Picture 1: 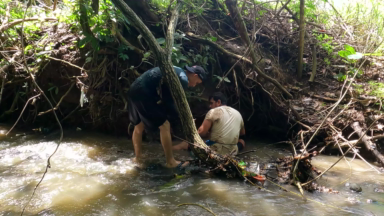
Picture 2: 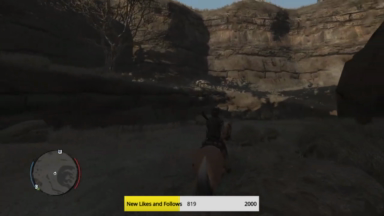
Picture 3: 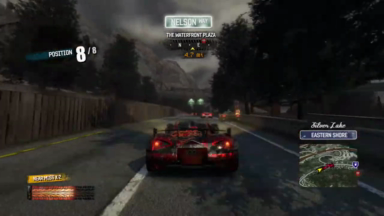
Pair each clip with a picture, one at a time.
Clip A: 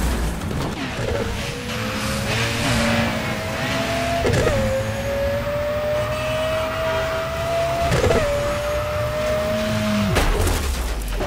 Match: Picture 3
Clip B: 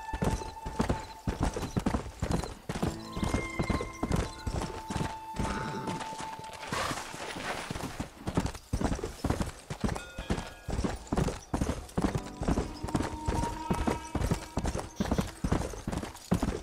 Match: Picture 2